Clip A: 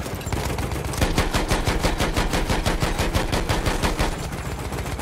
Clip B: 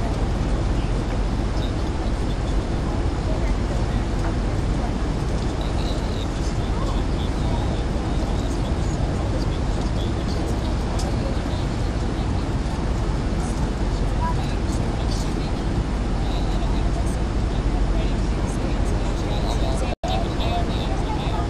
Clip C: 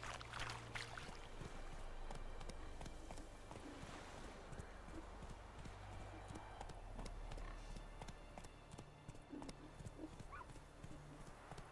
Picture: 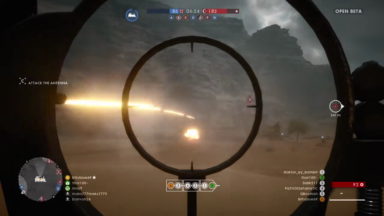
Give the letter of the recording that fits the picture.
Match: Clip A